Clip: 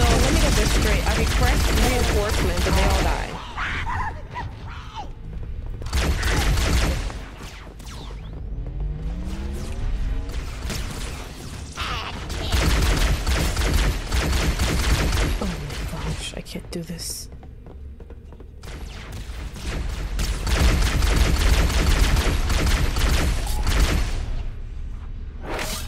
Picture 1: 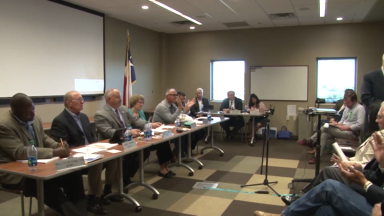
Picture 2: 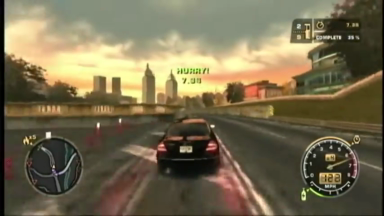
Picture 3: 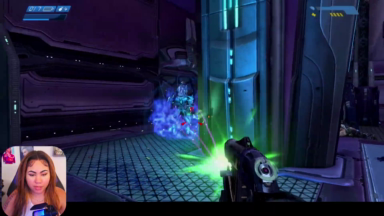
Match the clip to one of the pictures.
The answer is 3